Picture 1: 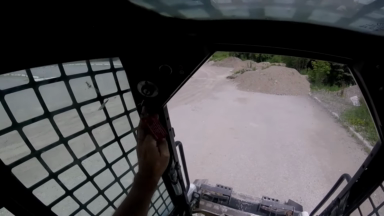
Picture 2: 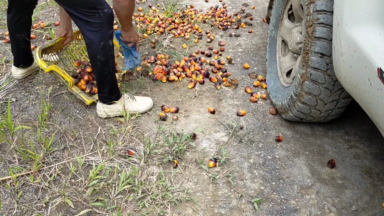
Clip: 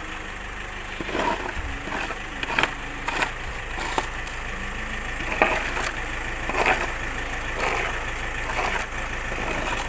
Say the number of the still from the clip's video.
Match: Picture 2